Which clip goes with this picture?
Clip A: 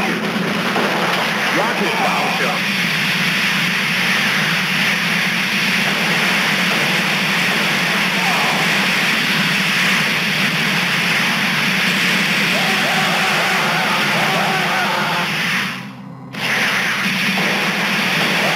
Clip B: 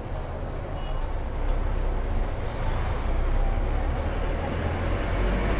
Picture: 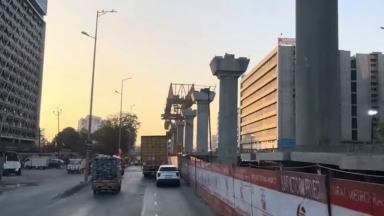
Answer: B